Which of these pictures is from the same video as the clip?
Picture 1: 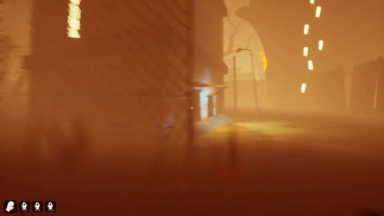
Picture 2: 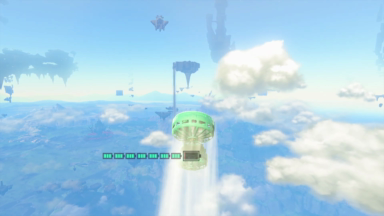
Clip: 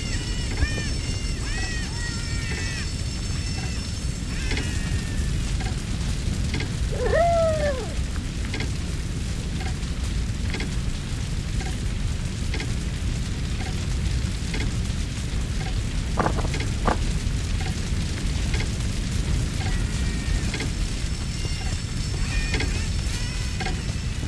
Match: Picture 1